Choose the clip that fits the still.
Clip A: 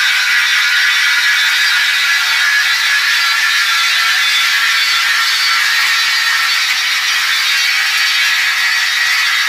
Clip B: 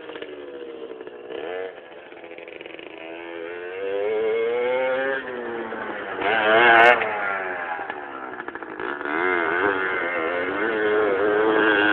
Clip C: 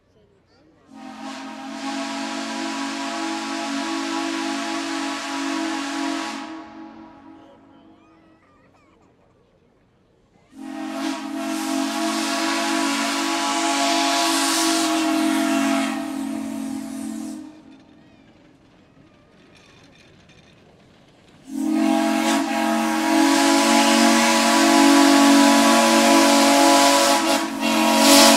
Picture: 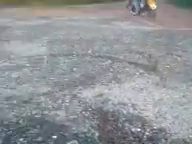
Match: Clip B